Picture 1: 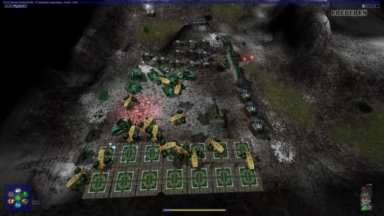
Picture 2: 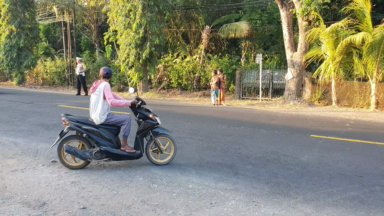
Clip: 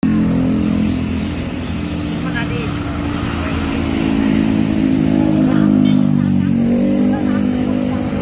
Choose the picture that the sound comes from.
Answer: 2